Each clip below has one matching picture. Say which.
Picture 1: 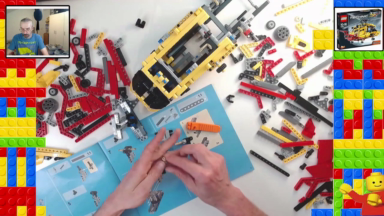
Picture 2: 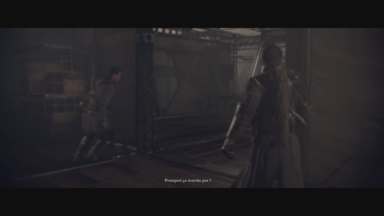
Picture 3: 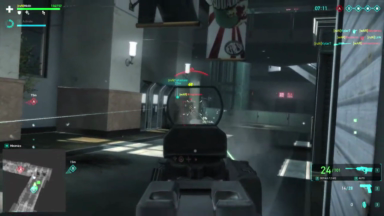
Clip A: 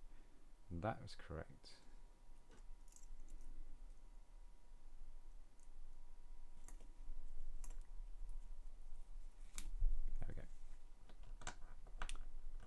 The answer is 1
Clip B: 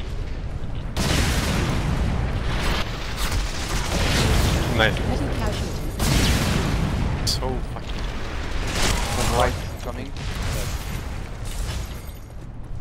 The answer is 3